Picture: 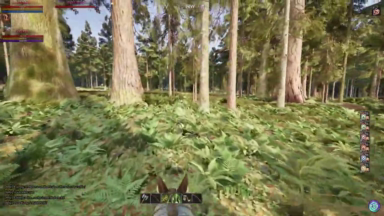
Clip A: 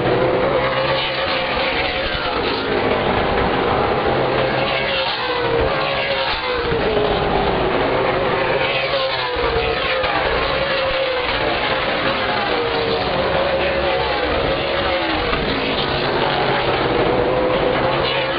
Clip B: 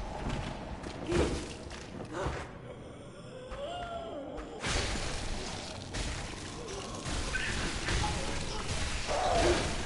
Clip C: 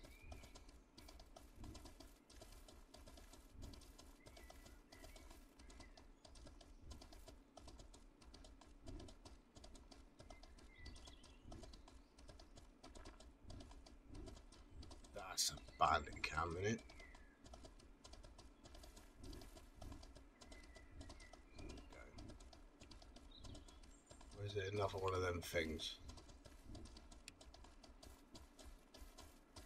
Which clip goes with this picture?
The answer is C